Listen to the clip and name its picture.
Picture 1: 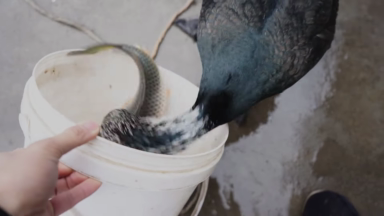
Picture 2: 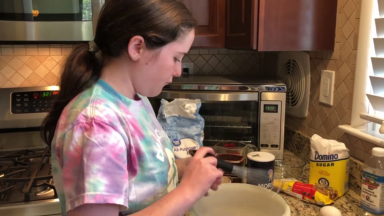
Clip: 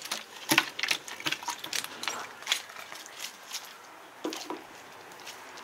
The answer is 1